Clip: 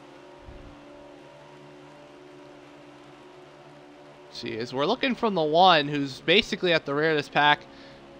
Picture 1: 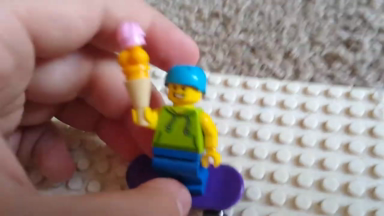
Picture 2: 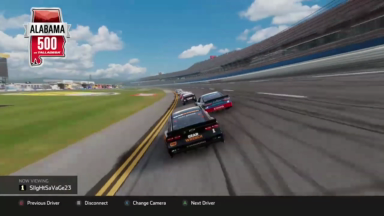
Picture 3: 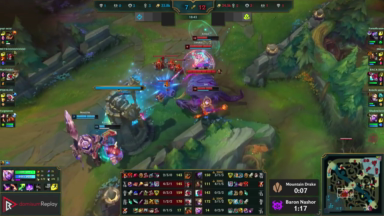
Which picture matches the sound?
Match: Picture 2